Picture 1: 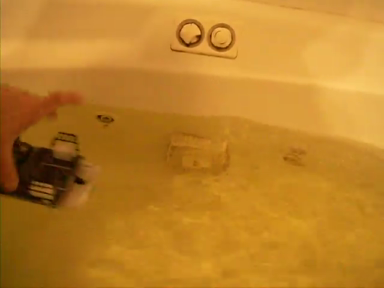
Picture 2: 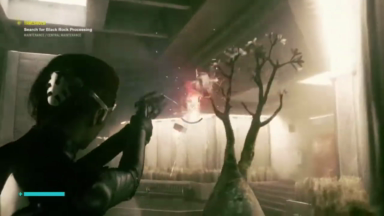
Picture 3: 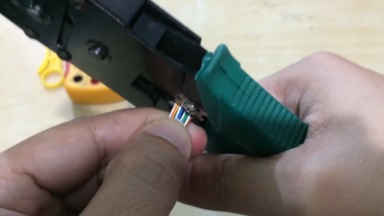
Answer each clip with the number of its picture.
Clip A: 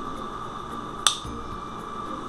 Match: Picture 3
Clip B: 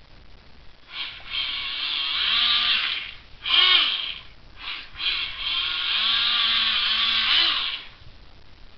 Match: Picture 1